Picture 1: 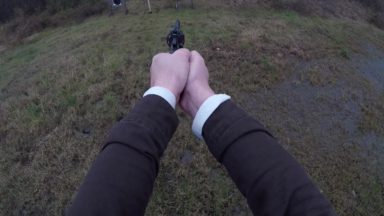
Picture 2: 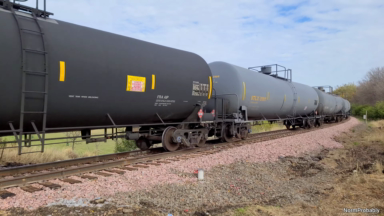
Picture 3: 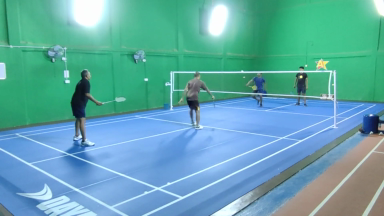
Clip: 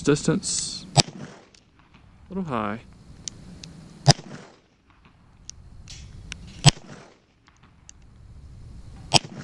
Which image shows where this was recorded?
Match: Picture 1